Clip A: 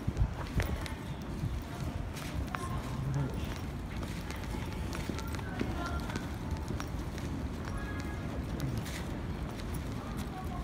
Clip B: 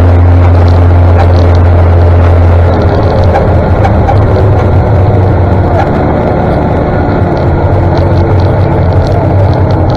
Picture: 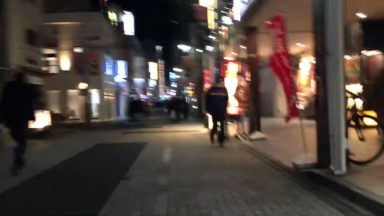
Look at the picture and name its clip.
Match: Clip A